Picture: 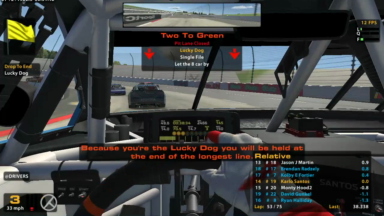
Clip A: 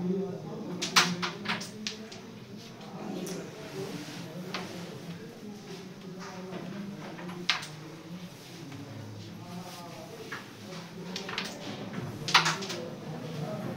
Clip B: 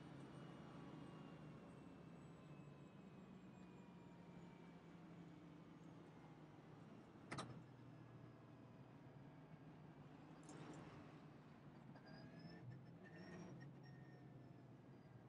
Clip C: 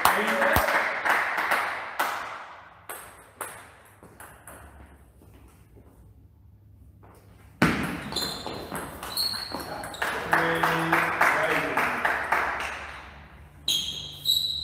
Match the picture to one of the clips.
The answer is B